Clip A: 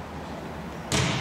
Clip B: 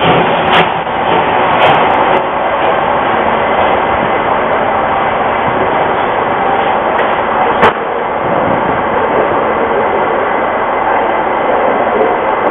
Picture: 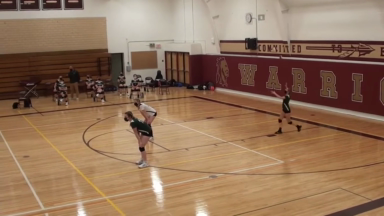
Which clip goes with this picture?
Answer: A